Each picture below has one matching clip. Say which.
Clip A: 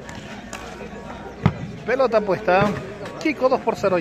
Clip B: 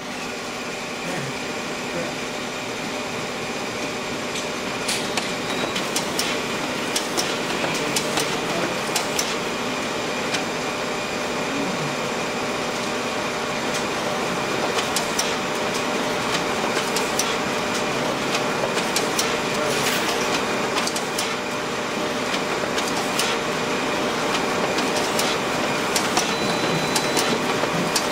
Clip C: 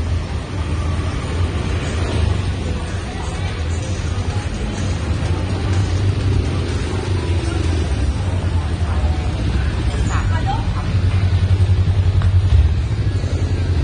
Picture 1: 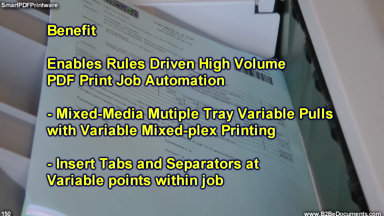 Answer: B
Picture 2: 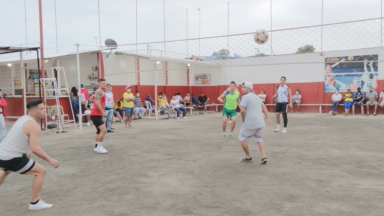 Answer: A